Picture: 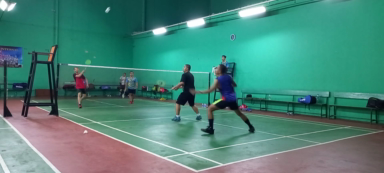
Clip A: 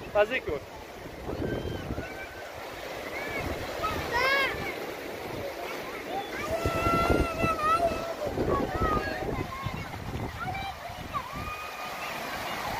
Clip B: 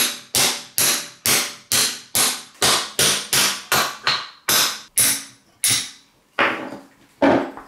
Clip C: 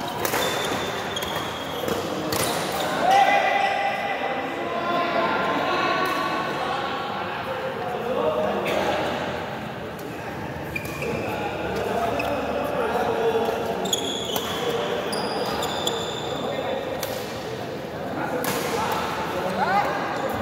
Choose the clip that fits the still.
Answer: C